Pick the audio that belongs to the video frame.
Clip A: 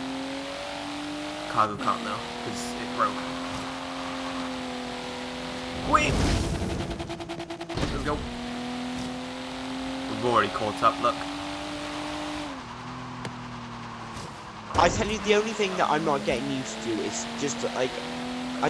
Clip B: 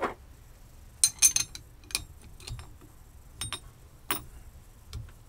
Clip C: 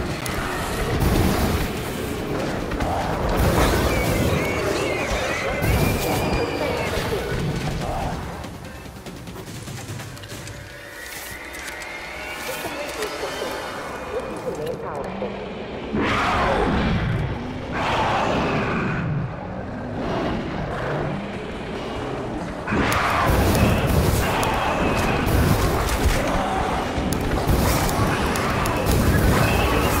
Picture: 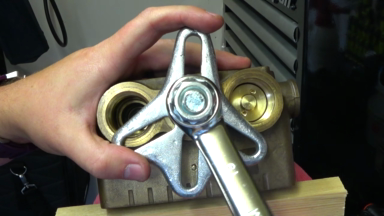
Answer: B